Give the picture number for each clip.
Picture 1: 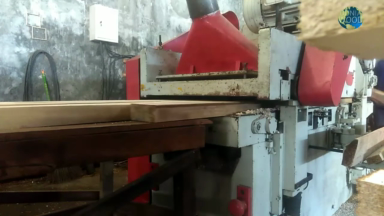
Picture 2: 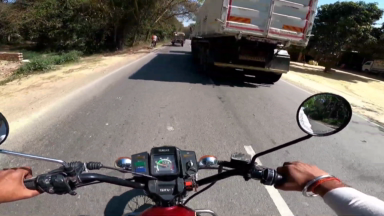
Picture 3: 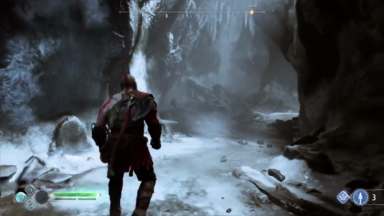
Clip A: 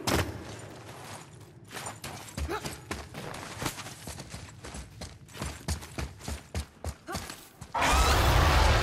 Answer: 3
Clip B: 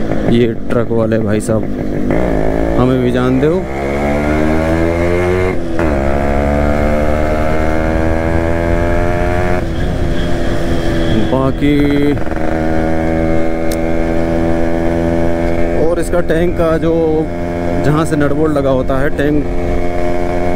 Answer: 2